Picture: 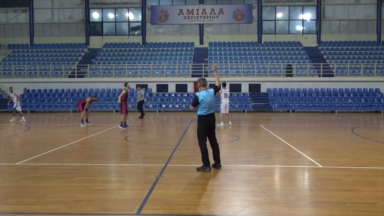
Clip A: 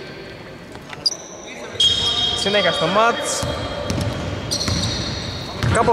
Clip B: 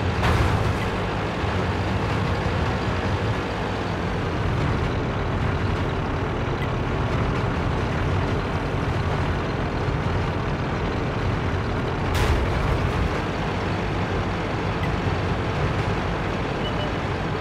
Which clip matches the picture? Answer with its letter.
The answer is A